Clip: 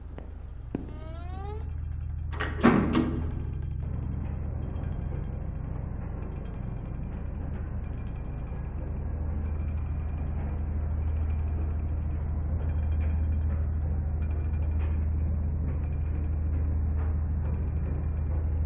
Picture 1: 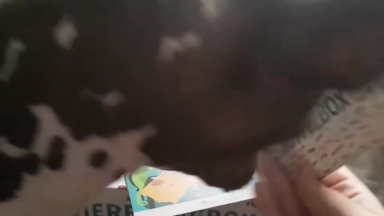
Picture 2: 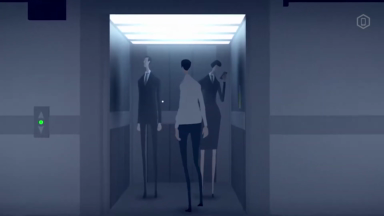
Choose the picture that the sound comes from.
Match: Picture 2